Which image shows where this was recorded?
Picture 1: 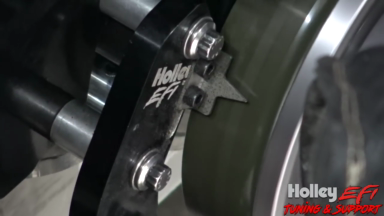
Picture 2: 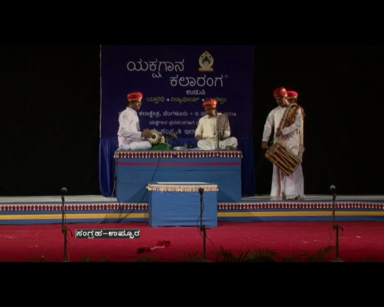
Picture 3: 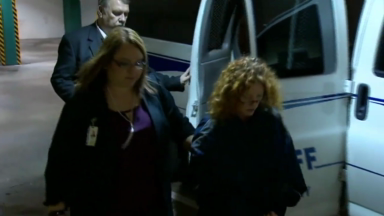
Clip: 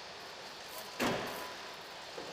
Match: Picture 3